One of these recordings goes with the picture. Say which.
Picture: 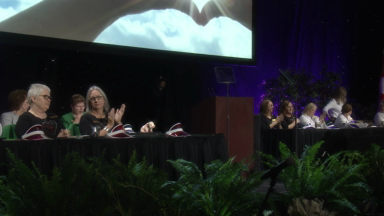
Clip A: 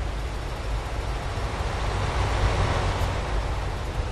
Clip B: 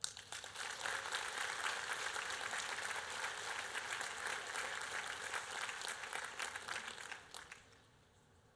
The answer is B